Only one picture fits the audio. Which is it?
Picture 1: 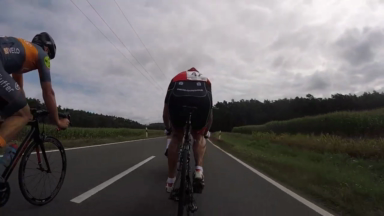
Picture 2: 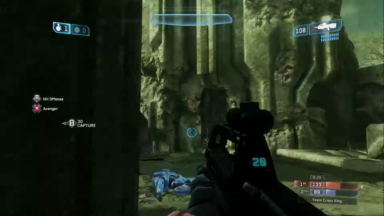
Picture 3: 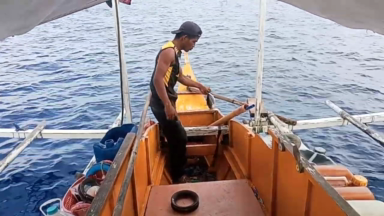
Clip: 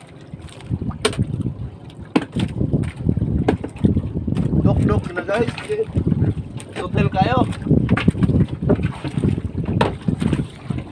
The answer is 3